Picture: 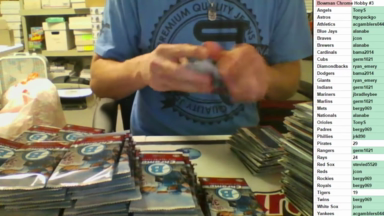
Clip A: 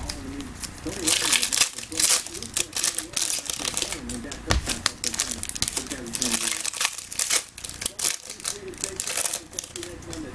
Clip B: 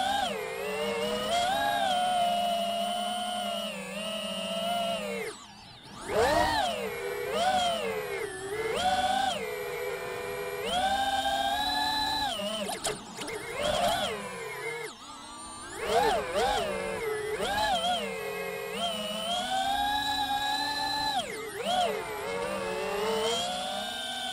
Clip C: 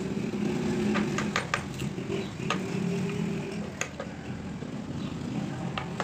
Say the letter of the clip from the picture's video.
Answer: A